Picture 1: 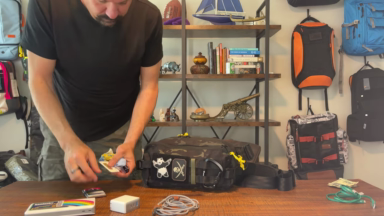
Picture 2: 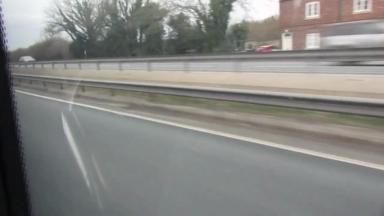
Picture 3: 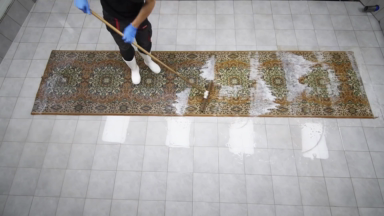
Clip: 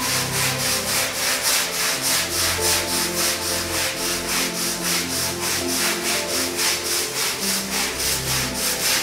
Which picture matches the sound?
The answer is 3